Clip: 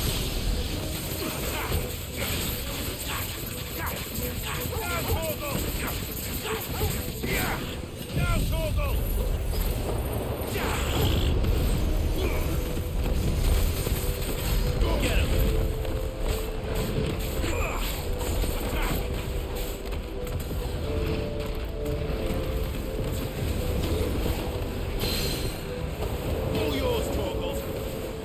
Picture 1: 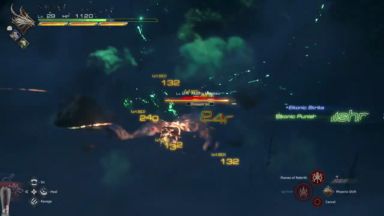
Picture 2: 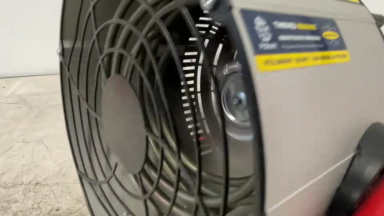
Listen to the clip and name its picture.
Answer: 1